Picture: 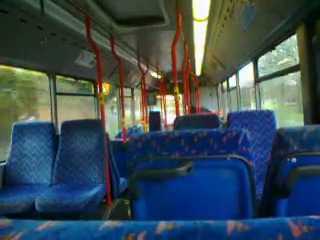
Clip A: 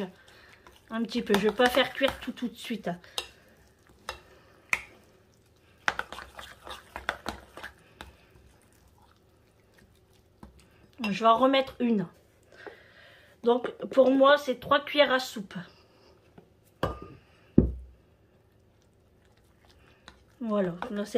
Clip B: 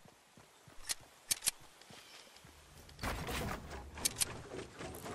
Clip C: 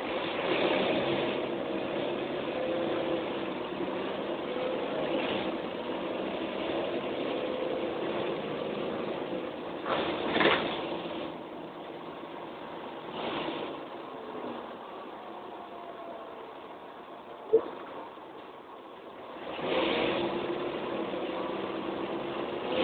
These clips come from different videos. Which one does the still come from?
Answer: C